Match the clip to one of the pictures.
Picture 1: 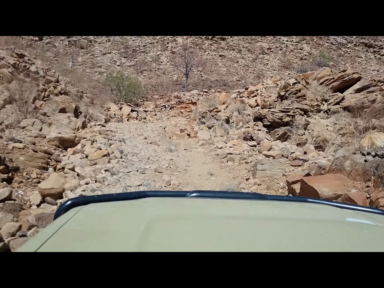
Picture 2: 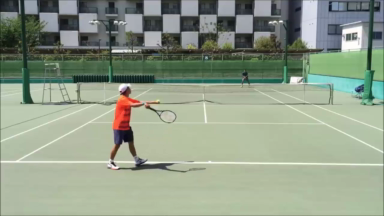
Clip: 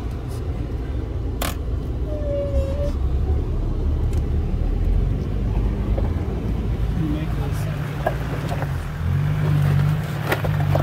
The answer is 1